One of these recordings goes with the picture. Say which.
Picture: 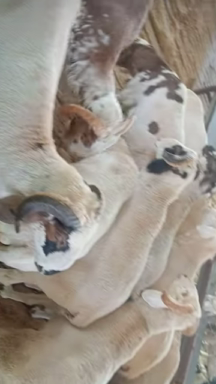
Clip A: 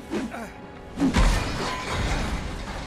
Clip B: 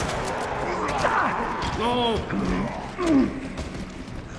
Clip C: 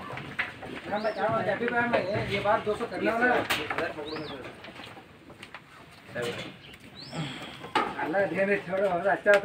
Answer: C